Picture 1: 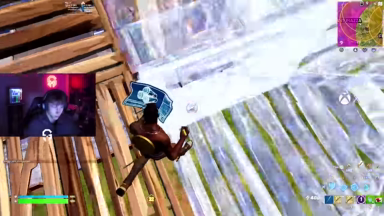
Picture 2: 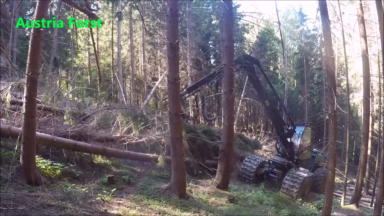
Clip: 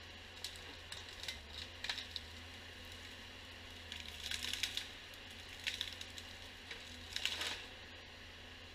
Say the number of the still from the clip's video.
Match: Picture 2